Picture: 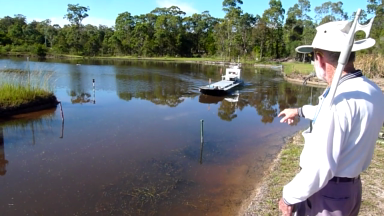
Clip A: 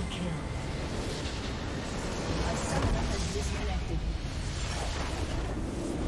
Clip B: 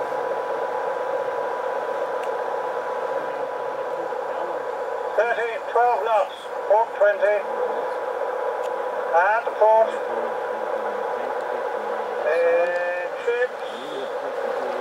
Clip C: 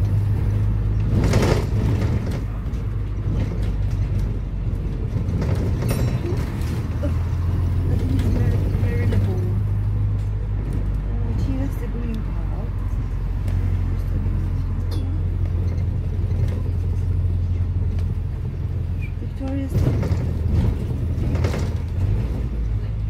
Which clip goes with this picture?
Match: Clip B